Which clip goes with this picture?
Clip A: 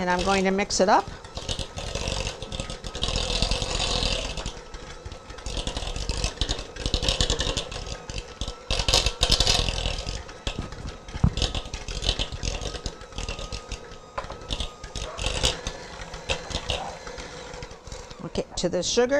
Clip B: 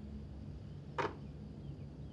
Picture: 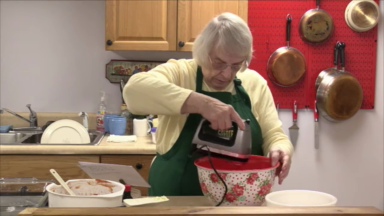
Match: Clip A